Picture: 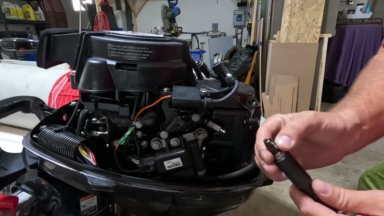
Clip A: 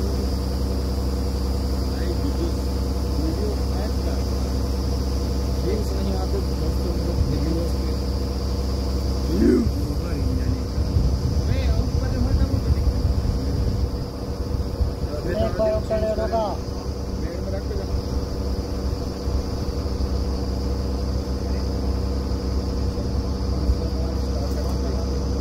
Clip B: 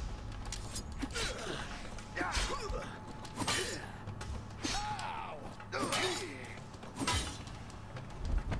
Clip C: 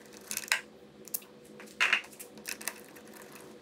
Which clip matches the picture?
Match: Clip C